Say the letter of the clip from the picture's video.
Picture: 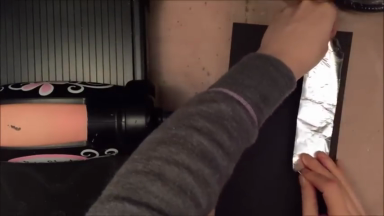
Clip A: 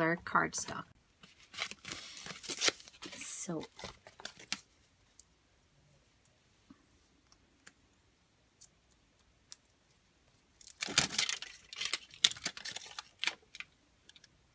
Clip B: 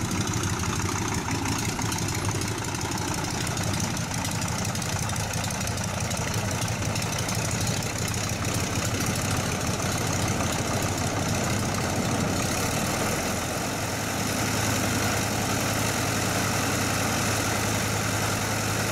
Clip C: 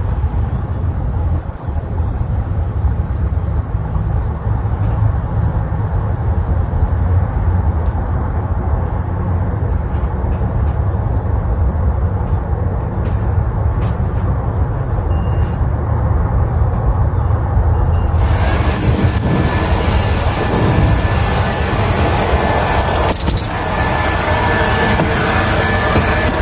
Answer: A